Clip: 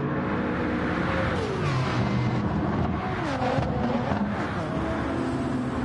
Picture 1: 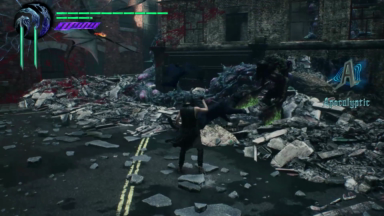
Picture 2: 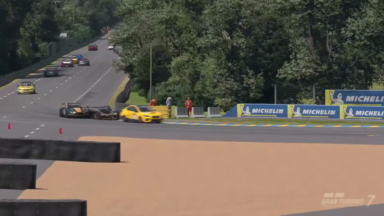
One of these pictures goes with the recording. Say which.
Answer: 2